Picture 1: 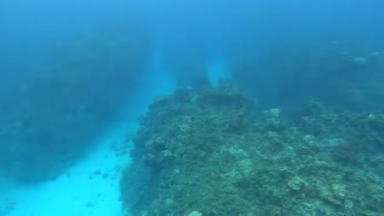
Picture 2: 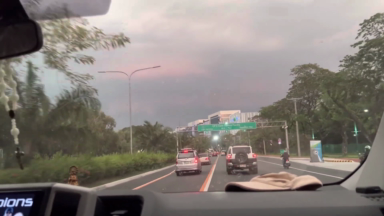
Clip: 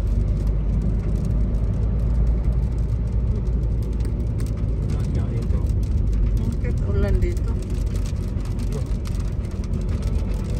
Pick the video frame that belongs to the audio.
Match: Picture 2